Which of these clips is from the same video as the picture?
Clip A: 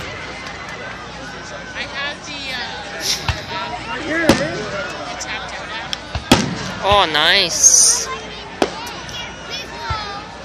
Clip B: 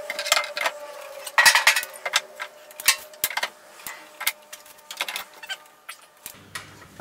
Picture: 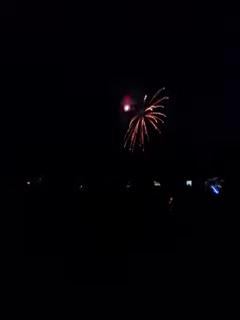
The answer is A